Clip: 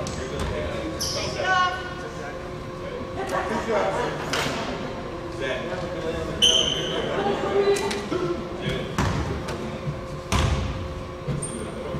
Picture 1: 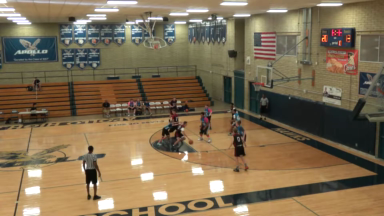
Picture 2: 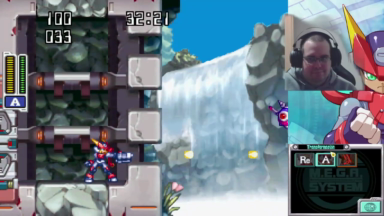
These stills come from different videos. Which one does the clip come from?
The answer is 1